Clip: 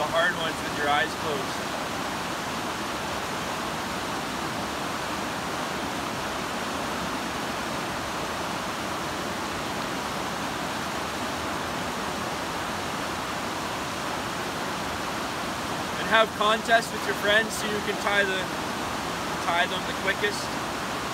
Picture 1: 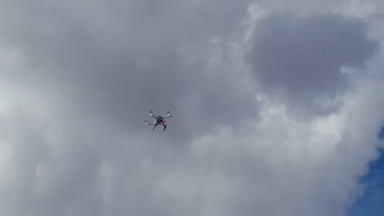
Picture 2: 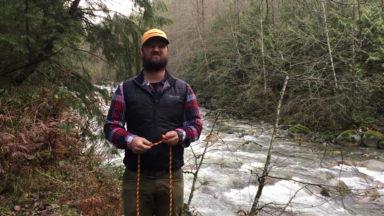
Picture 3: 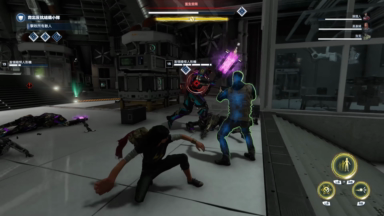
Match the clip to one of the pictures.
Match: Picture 2